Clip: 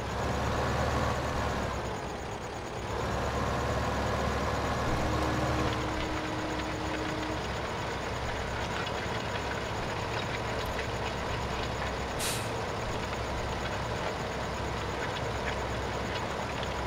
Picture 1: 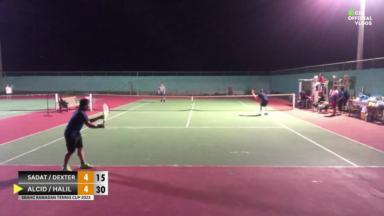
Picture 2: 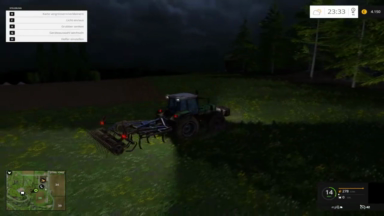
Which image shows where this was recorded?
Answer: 2